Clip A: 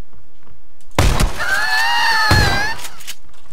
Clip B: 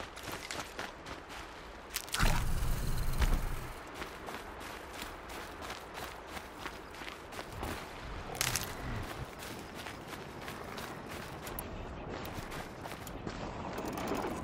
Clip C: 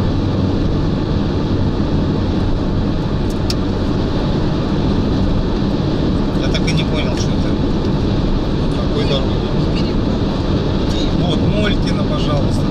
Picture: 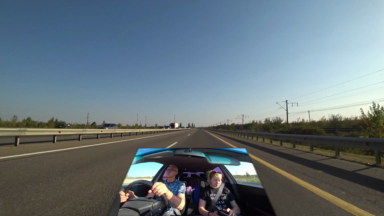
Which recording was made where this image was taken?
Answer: C